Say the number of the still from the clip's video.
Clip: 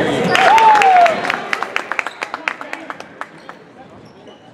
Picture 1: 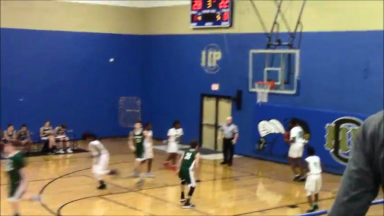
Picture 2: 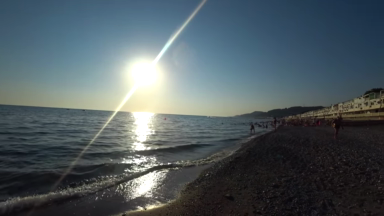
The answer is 1